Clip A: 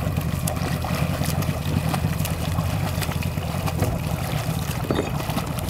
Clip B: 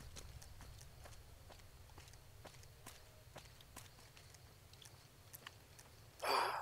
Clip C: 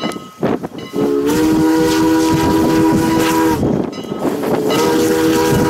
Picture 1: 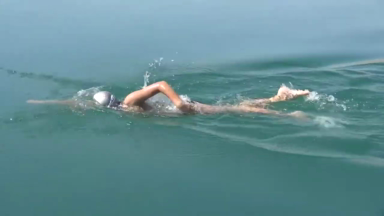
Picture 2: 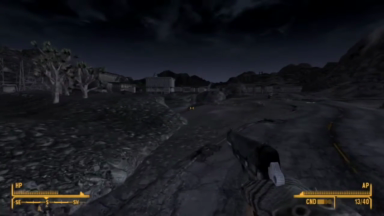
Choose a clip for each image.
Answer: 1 A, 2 B